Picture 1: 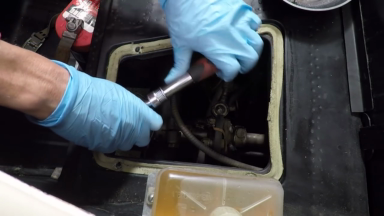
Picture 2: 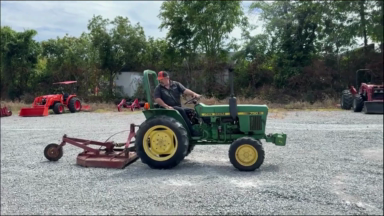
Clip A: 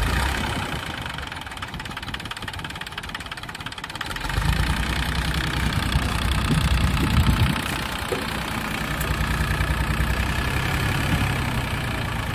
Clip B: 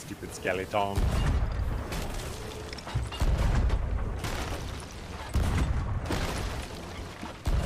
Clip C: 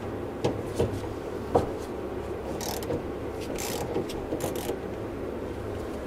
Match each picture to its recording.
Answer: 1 C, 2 A